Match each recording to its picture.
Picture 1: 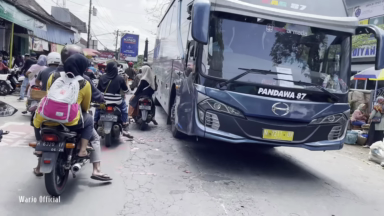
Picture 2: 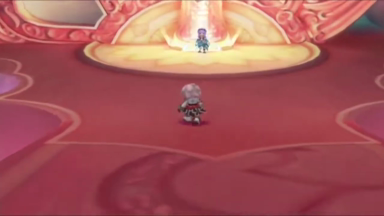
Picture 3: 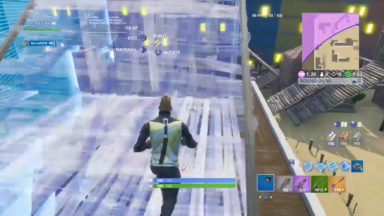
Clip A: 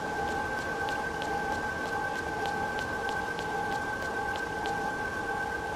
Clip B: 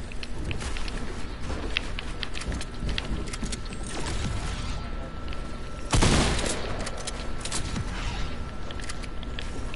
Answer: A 2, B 3